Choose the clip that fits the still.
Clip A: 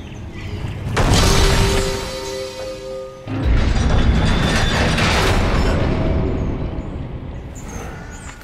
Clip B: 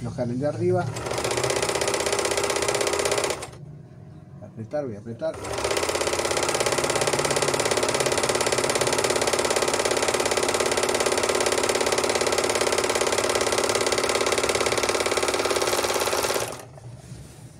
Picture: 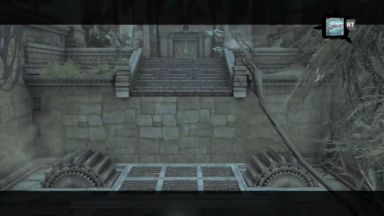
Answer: A